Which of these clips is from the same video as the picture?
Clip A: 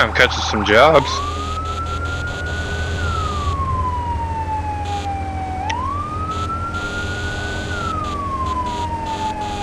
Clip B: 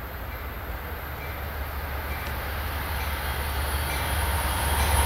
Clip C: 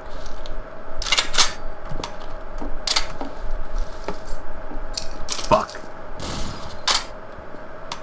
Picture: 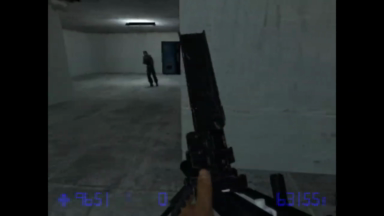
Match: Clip C